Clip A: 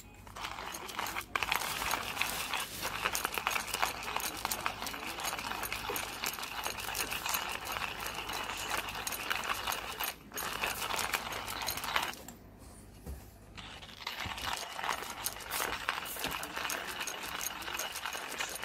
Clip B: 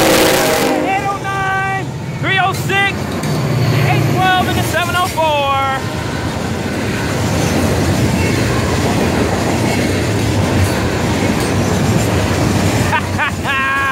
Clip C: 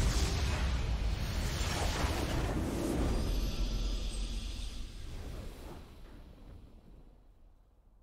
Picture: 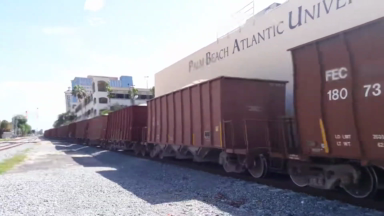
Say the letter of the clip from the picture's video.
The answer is B